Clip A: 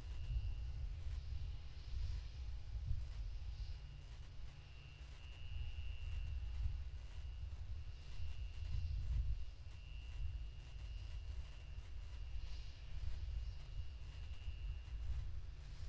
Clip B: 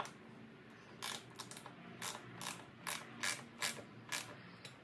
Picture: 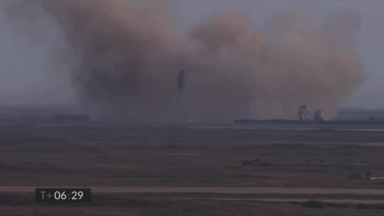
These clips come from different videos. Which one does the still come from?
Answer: A